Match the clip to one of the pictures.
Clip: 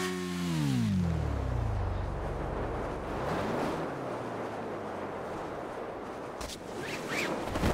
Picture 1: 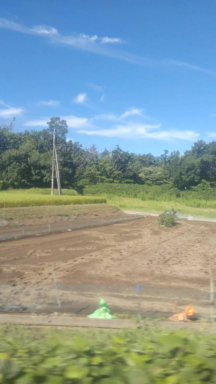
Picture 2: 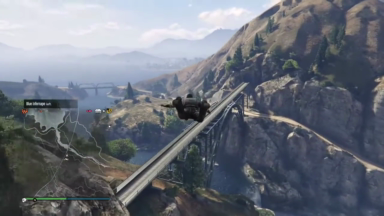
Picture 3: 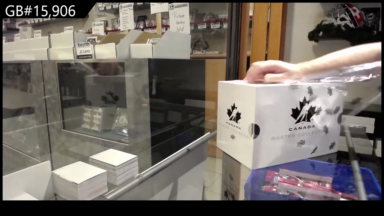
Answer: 2